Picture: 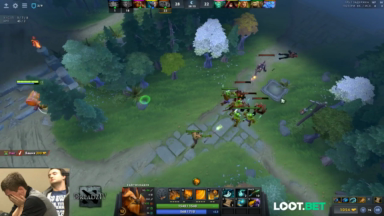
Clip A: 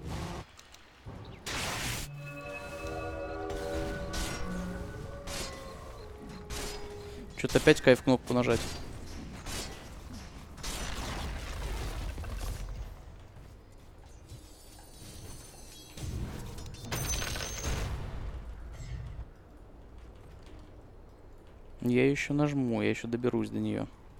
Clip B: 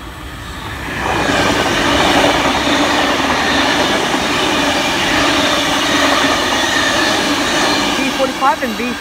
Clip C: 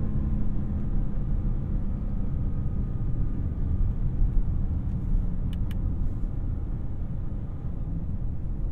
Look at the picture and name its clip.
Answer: A